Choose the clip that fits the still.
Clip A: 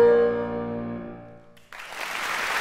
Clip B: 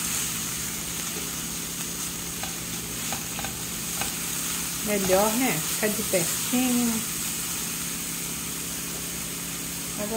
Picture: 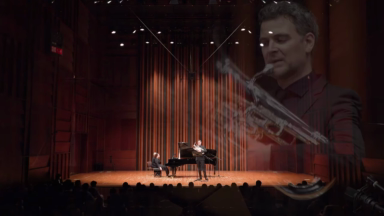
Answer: A